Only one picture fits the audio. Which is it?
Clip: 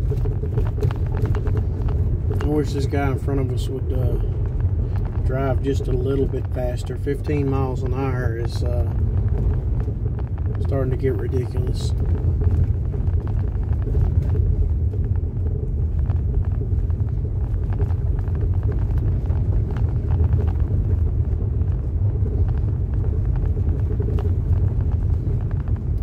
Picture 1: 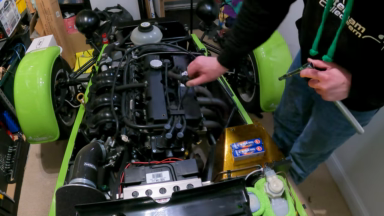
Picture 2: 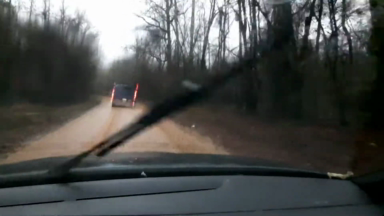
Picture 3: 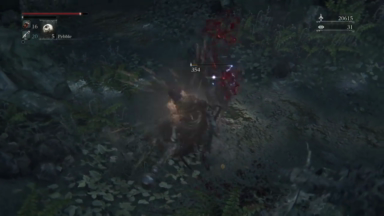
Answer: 2